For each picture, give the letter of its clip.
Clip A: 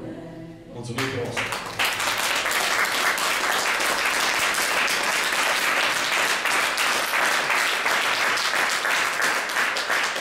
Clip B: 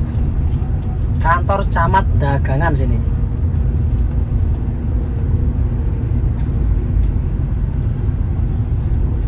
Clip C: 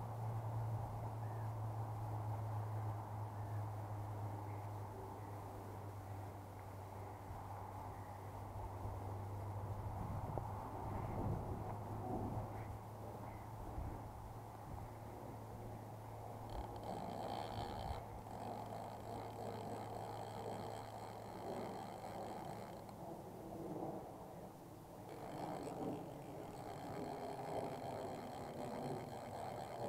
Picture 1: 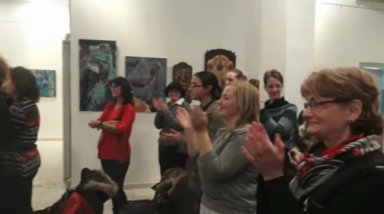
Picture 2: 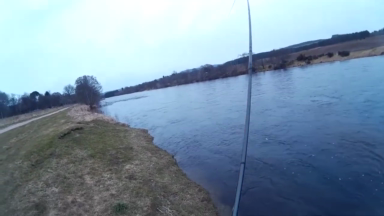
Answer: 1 A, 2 C